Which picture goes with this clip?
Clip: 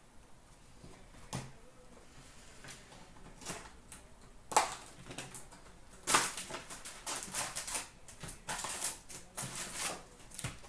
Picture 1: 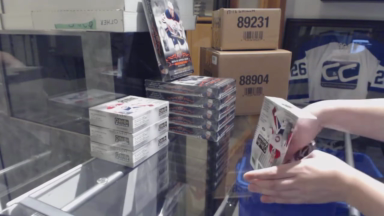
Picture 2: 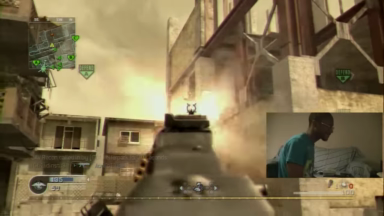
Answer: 1